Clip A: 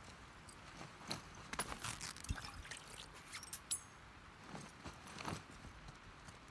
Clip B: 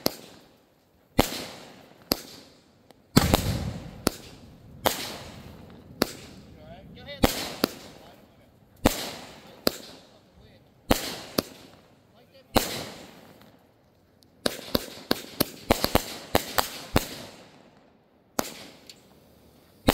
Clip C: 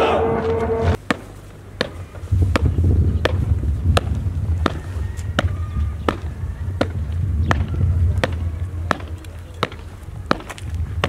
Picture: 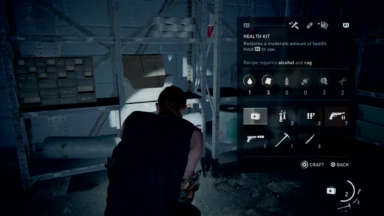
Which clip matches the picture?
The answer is A